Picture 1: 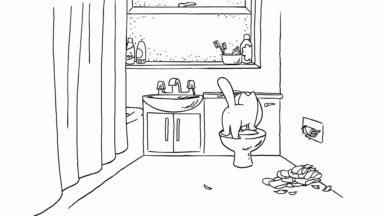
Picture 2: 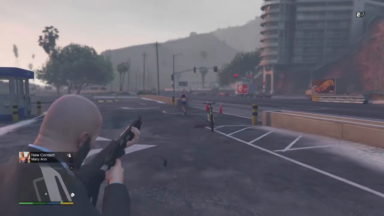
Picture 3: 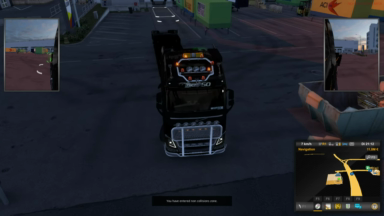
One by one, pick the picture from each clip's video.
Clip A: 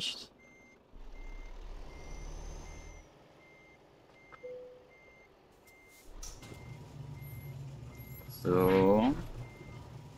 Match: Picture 3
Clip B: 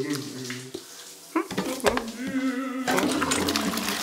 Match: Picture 1